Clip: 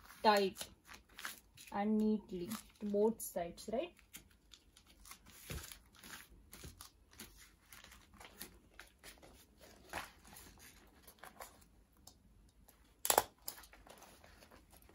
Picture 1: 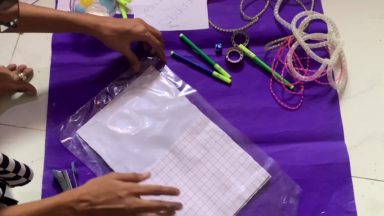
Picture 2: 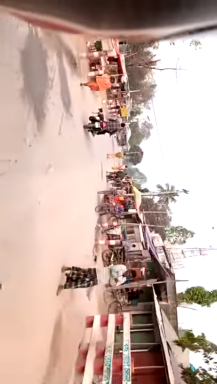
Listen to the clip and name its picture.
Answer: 1